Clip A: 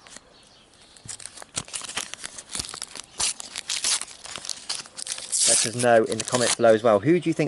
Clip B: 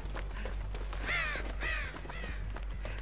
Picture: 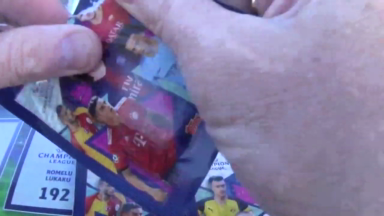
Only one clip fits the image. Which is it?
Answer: A